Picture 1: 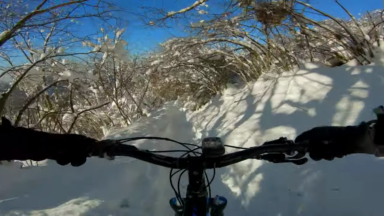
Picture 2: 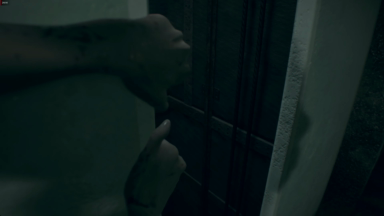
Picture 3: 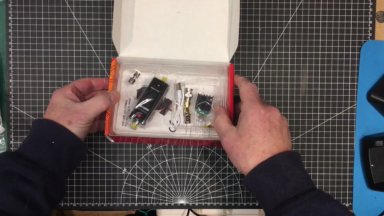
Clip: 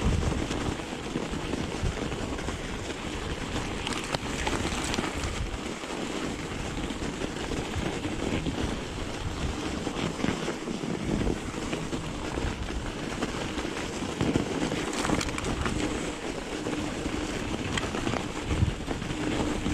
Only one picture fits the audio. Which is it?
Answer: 1